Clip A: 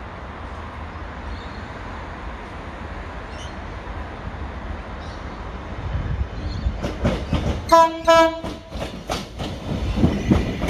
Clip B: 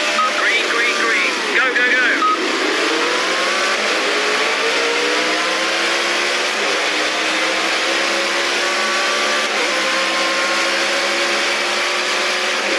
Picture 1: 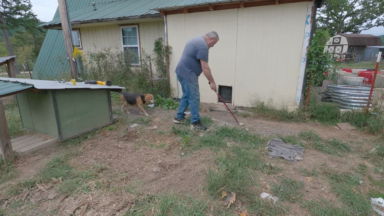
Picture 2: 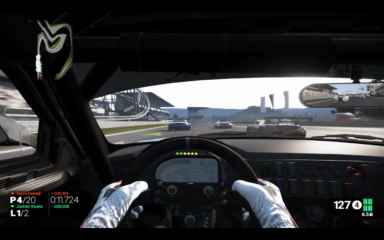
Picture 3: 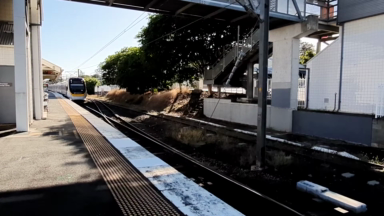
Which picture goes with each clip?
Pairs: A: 3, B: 2